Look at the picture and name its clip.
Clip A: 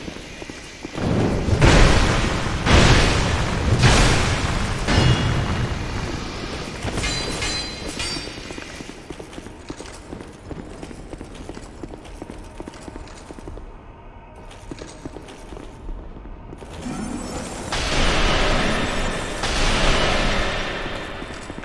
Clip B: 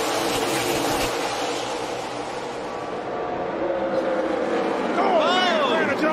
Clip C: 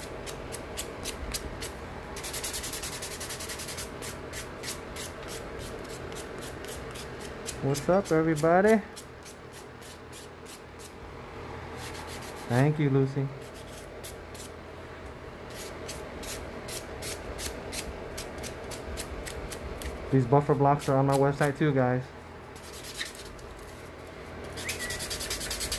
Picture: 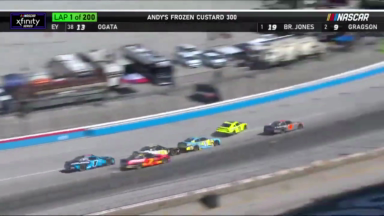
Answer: B